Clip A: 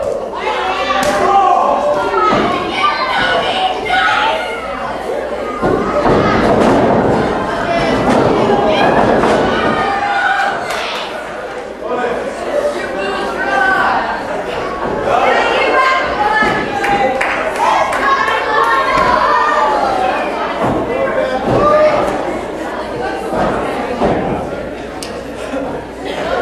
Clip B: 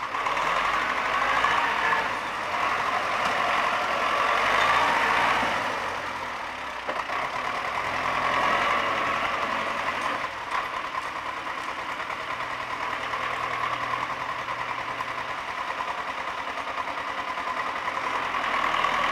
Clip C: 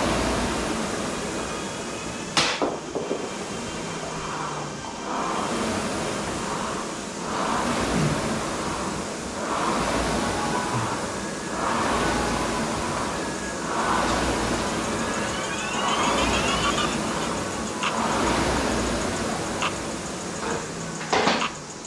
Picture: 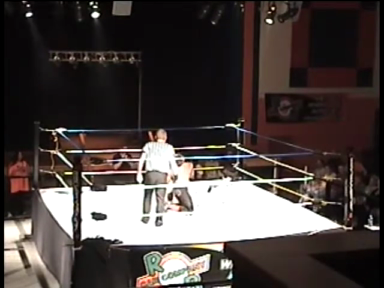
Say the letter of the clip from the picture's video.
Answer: A